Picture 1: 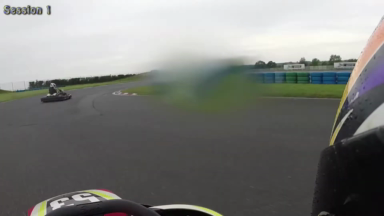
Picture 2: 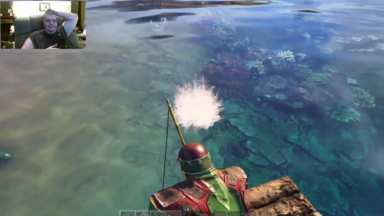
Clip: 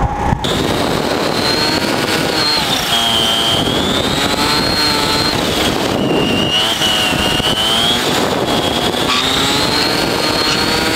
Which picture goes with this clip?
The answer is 1